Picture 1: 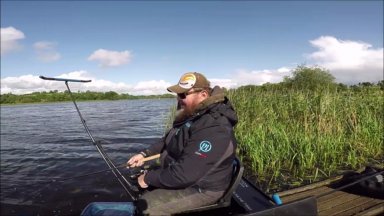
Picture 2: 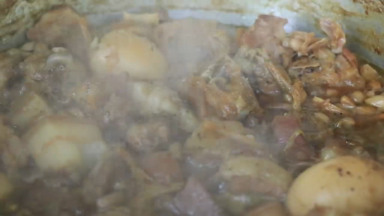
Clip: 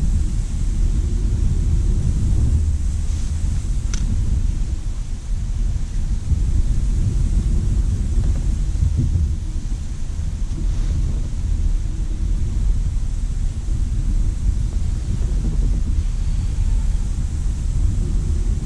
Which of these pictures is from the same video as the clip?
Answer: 1